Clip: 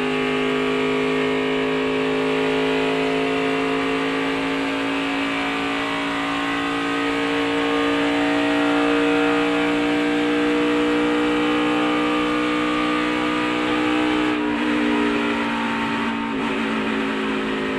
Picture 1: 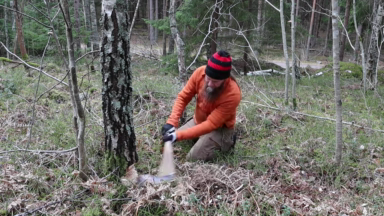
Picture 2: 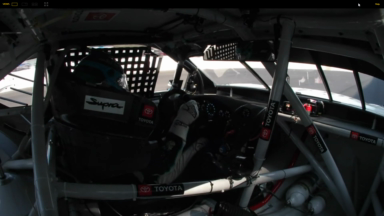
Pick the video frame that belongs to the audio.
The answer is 2